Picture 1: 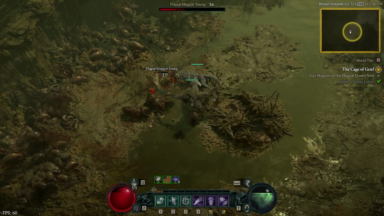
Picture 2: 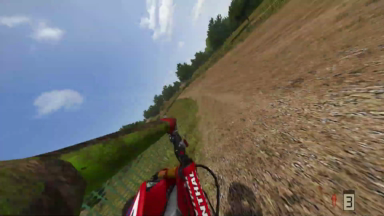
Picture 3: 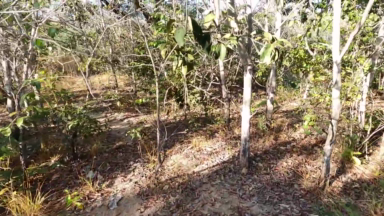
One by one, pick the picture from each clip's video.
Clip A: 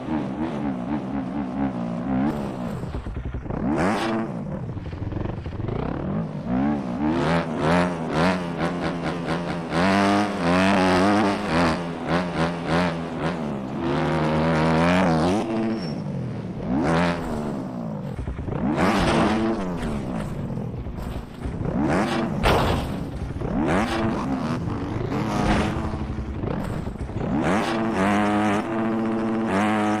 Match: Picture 2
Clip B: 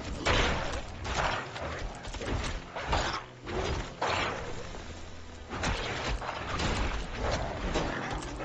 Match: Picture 1